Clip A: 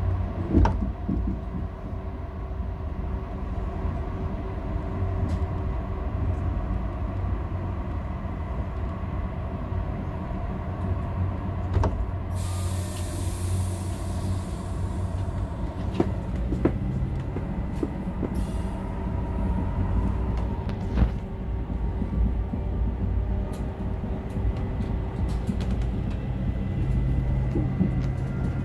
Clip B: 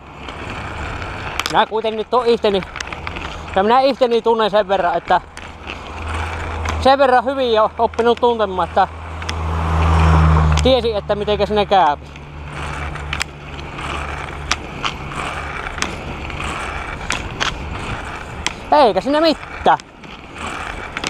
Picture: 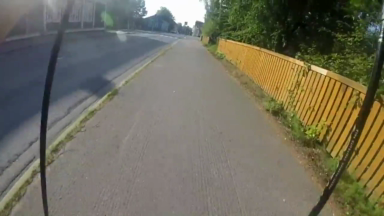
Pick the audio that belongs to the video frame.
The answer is B